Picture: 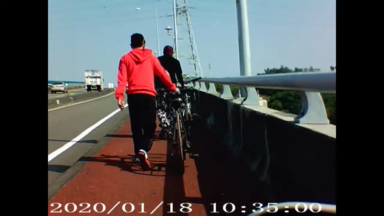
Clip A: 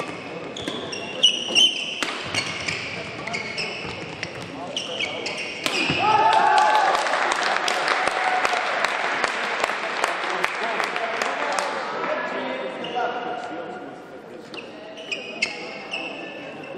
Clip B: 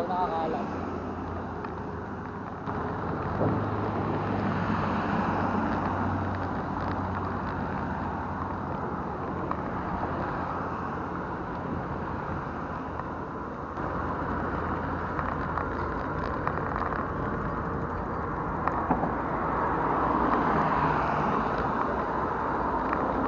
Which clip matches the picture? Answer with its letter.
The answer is B